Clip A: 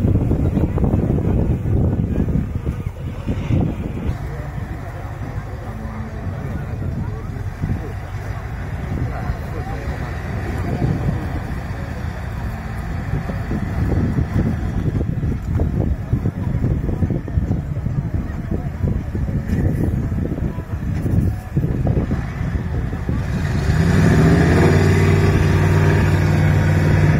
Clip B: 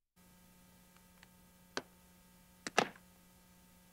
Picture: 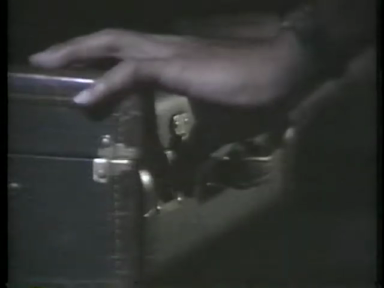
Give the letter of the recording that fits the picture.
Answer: B